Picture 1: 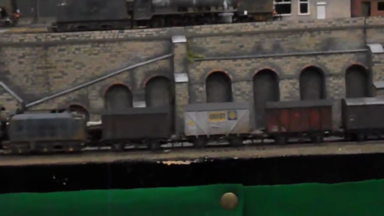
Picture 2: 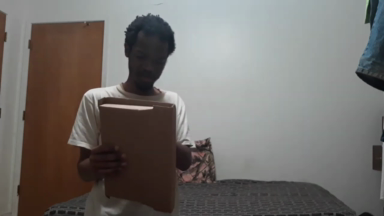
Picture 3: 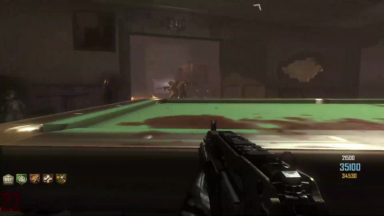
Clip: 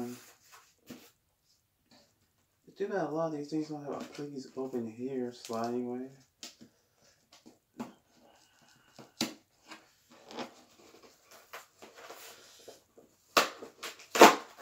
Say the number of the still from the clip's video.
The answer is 2